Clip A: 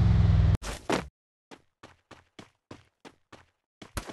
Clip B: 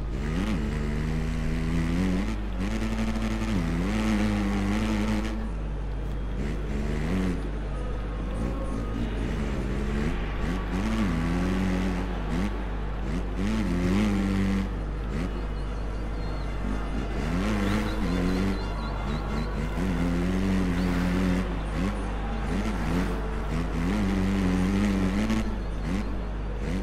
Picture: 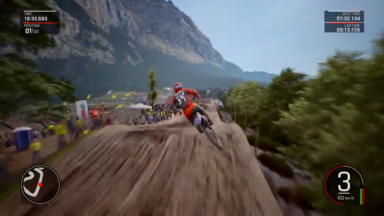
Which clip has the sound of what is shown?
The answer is B